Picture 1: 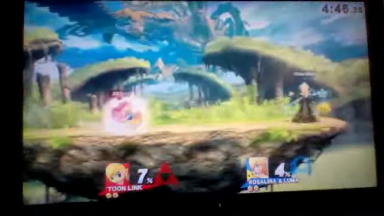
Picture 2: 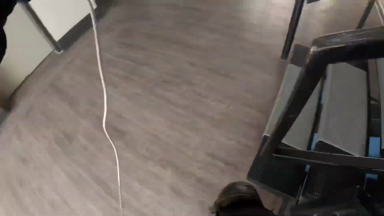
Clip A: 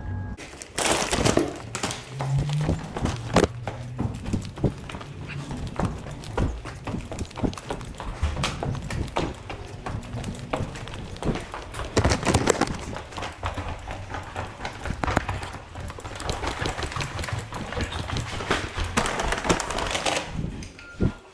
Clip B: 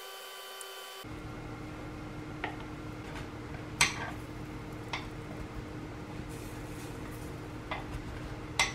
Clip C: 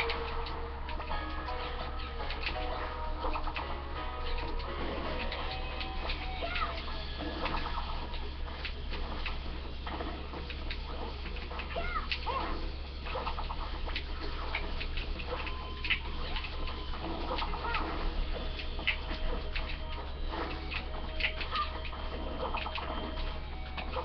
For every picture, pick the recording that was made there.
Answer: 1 C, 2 A